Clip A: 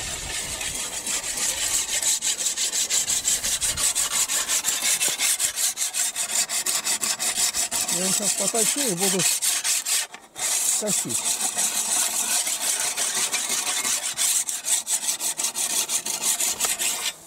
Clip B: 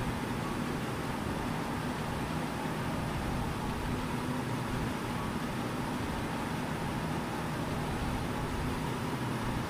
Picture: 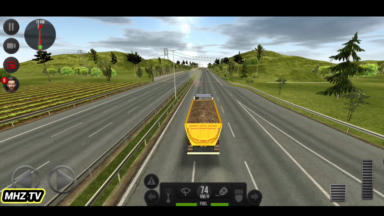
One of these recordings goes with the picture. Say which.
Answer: B